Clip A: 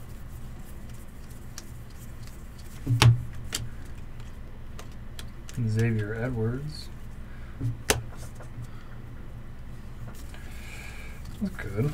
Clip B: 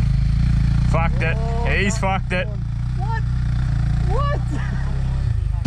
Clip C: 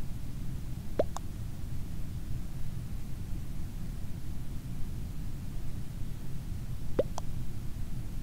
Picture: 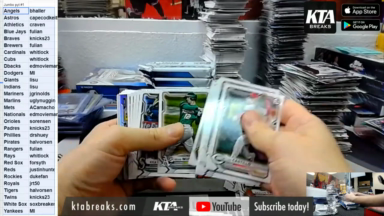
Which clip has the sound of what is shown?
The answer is A